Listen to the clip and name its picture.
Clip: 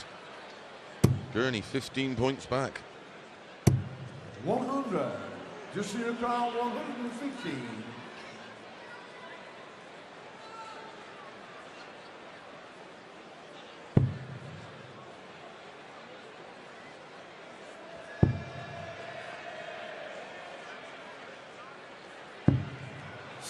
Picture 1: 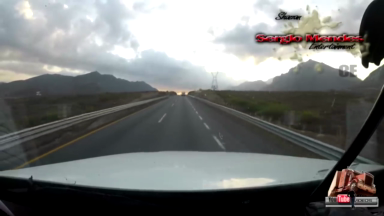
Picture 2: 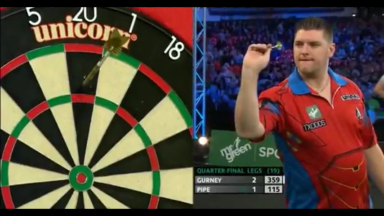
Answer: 2